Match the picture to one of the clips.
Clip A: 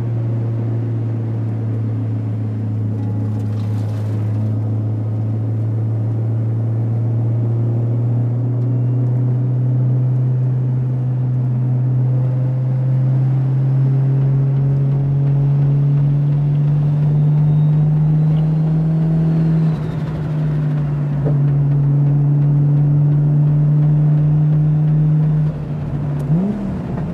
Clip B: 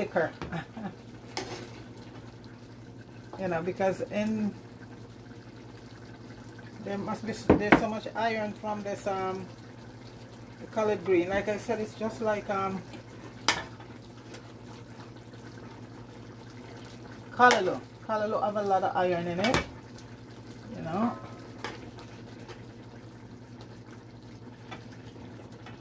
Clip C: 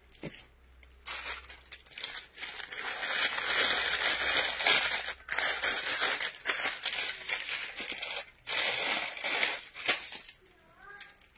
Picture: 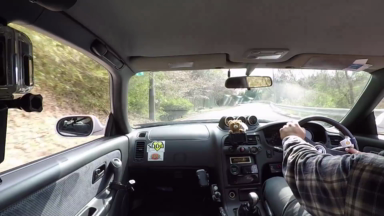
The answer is A